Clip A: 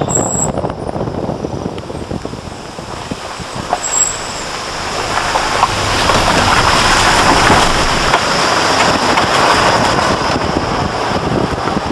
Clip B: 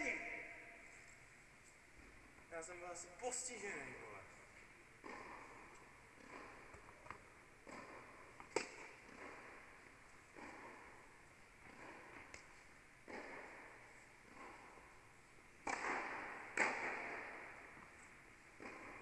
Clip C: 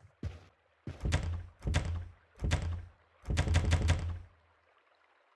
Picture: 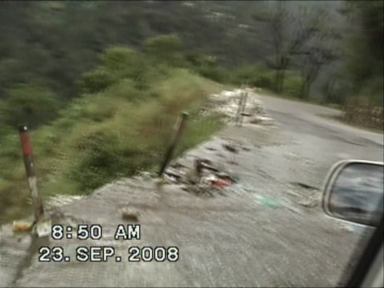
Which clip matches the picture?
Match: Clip A